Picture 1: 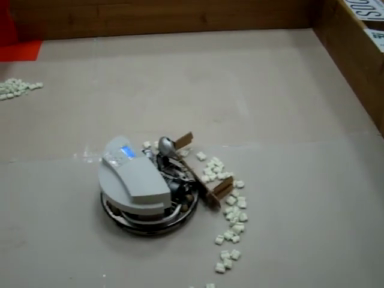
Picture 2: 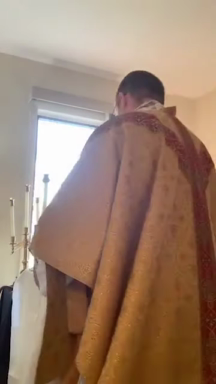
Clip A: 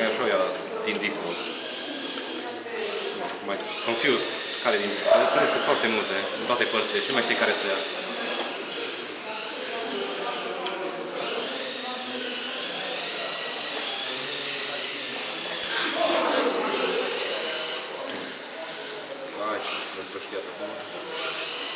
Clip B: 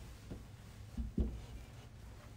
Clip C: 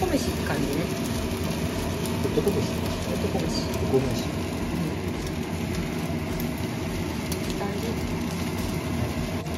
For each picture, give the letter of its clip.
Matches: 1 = A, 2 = B